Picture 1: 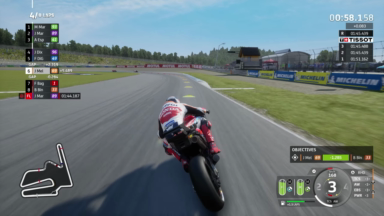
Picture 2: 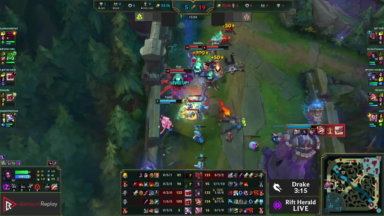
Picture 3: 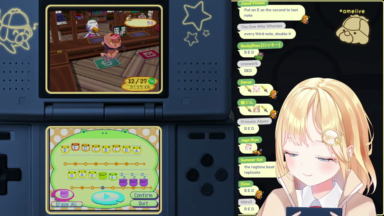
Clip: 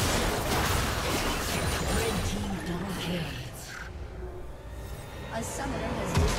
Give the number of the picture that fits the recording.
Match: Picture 2